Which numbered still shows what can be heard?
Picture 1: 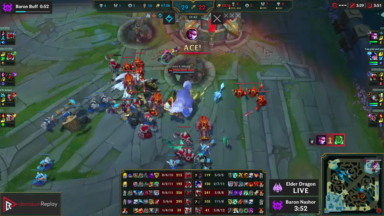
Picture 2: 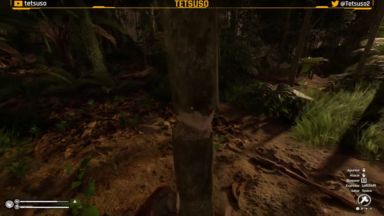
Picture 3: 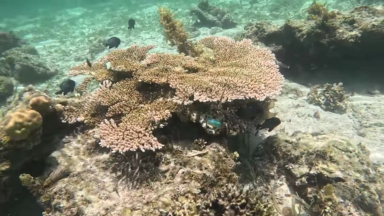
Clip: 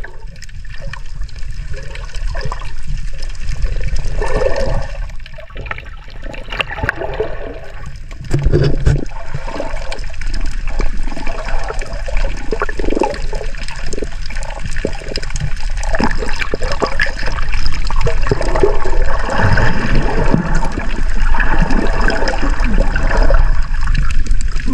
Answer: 3